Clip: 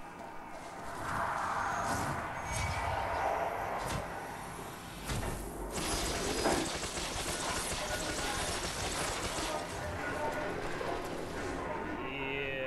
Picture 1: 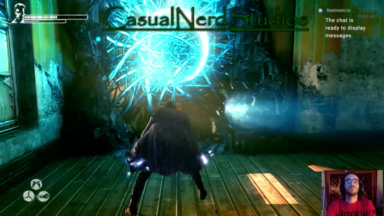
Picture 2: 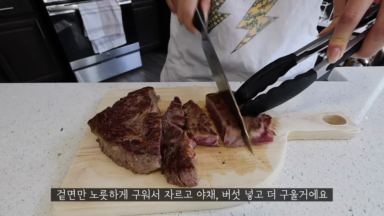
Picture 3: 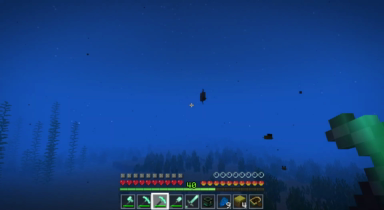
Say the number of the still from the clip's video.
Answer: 1